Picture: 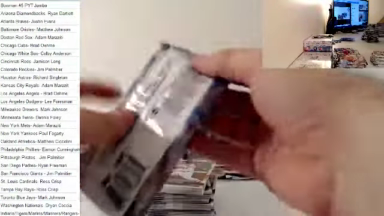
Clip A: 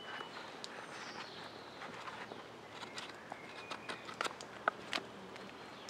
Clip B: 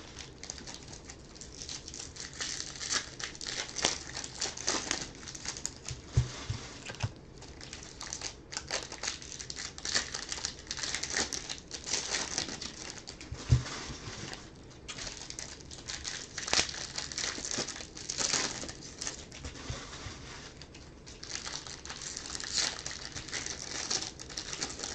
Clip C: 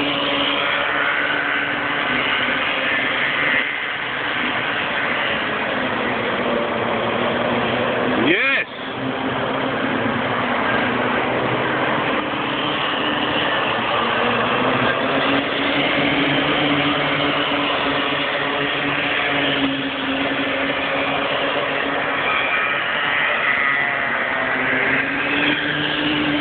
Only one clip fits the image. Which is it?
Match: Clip B